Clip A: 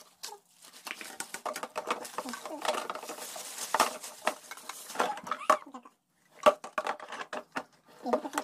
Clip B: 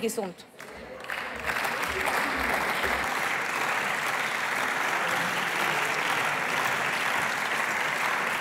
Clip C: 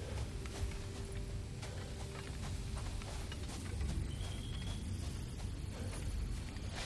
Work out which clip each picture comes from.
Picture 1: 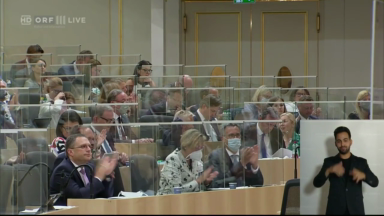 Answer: B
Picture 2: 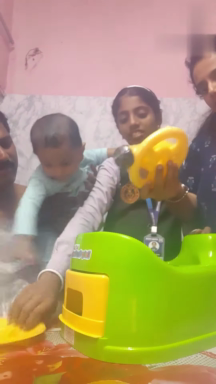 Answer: A